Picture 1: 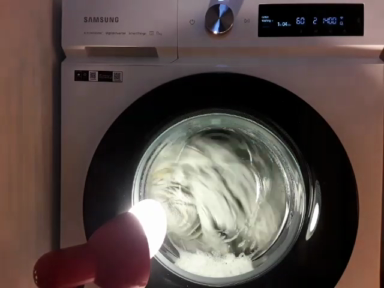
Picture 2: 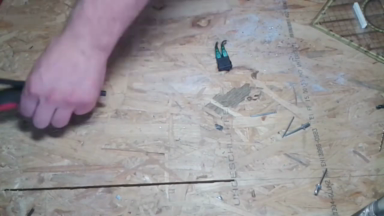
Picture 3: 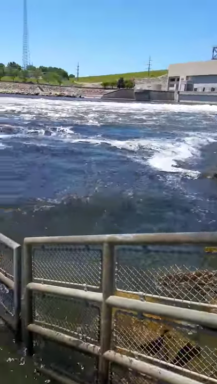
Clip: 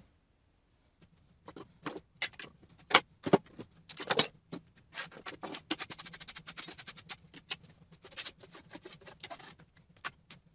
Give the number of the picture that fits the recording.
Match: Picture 2